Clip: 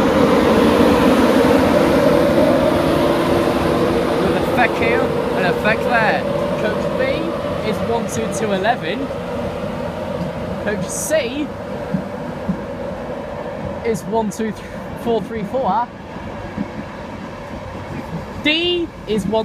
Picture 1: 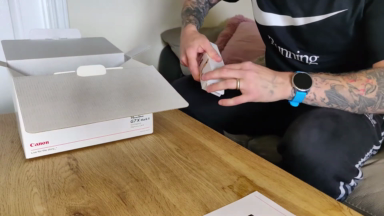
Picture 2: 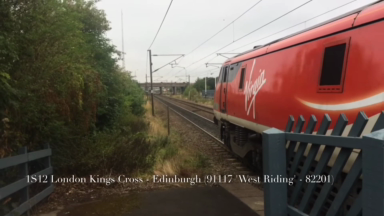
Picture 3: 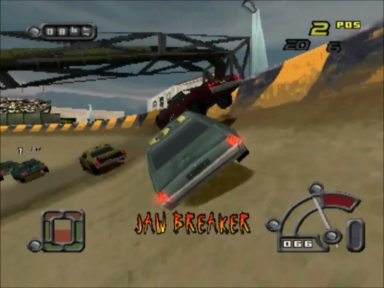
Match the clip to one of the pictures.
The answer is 2